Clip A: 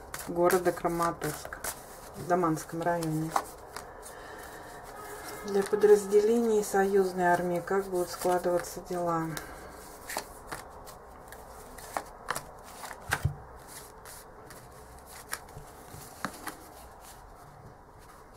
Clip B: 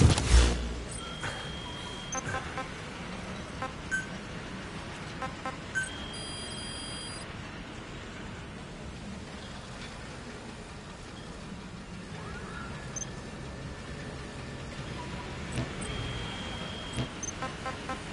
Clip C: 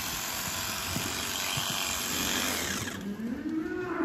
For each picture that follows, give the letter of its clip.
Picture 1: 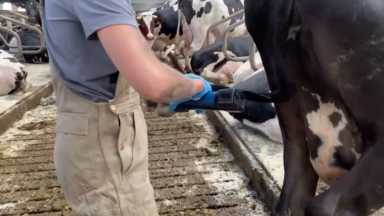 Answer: C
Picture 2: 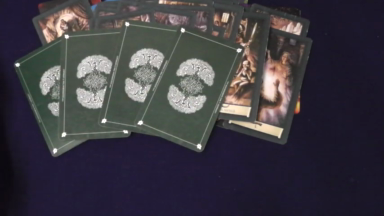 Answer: A